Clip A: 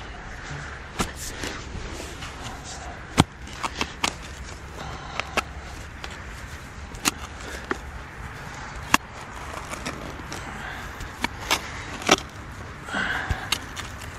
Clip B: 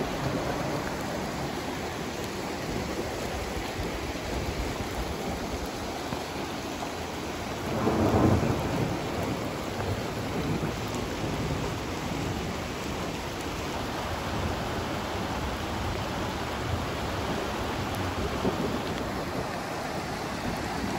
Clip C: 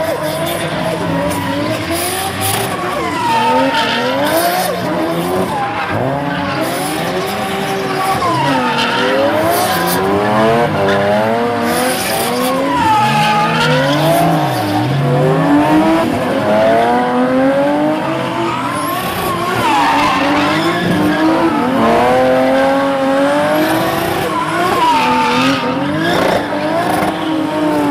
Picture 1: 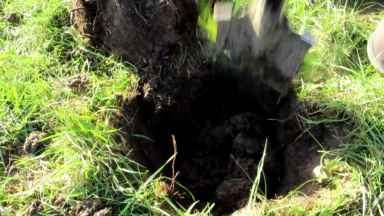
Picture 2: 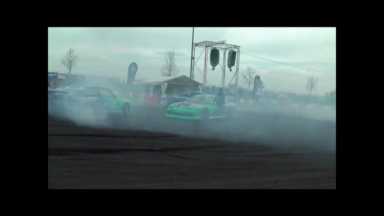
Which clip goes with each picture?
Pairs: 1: A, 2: C